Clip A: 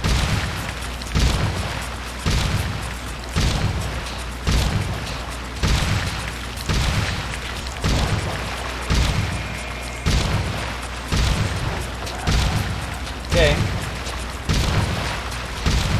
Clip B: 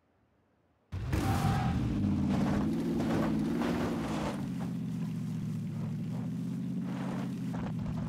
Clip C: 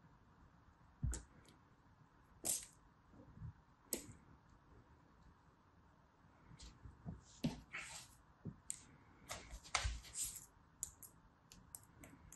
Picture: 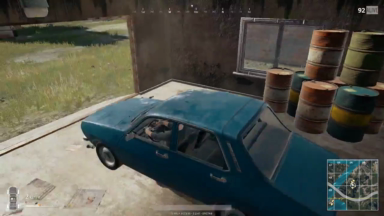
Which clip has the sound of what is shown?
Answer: B